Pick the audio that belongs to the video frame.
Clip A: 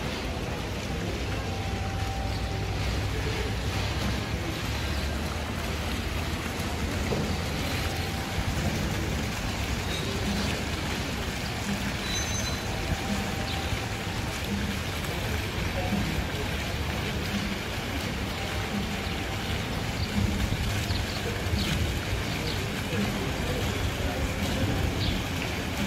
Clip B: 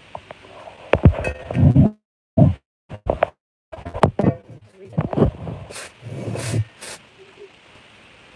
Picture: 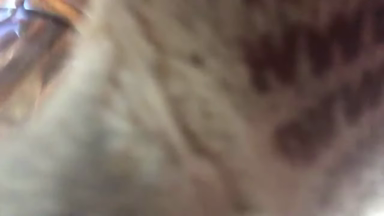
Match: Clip B